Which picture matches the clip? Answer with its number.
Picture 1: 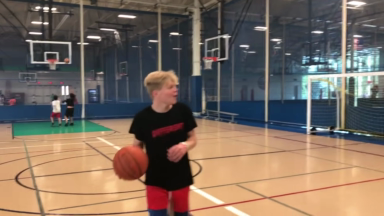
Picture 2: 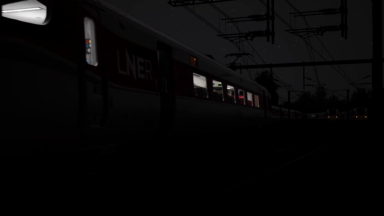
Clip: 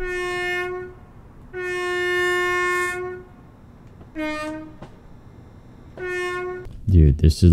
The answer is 2